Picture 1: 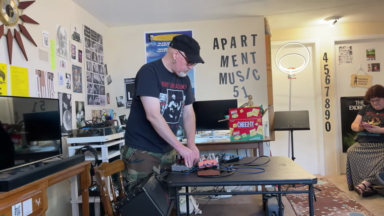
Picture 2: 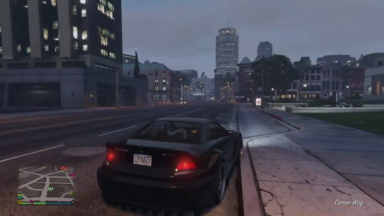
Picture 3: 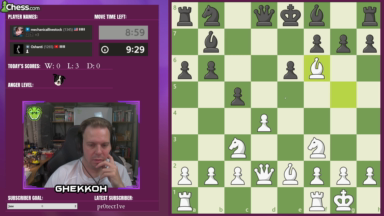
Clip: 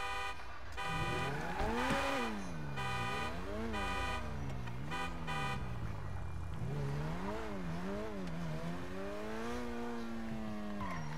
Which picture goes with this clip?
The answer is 2